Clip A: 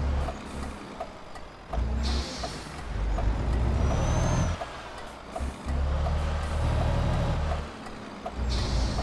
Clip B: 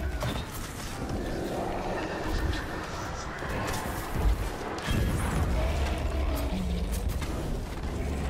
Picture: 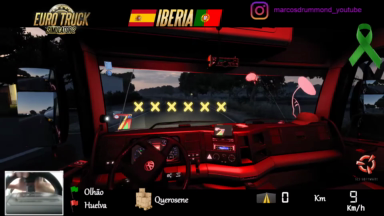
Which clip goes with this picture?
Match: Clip A